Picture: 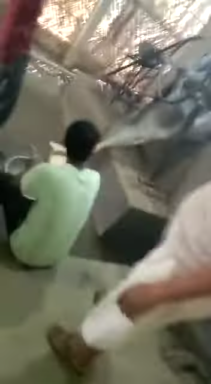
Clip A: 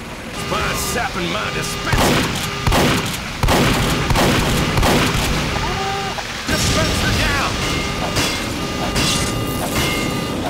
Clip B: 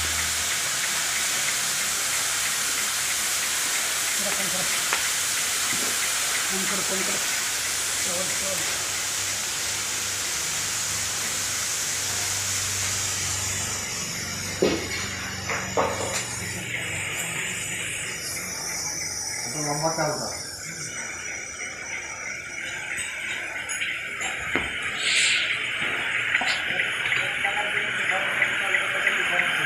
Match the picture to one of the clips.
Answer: B